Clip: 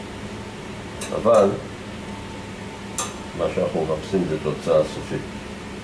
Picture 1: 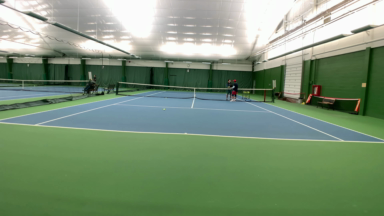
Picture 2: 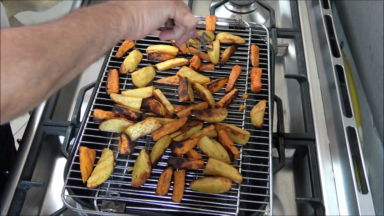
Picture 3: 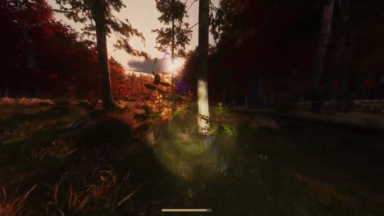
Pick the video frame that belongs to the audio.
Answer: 2